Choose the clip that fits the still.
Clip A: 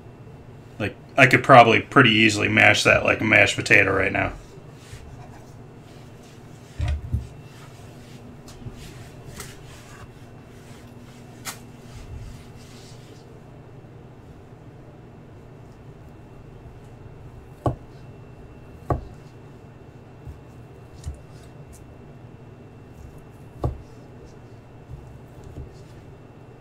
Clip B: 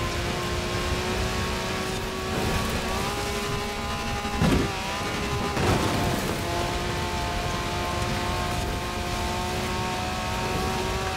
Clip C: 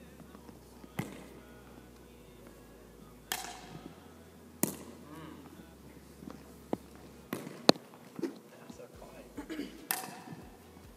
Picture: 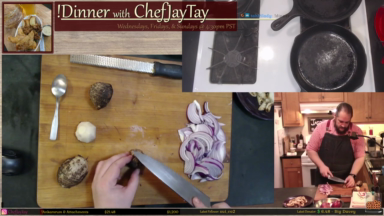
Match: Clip A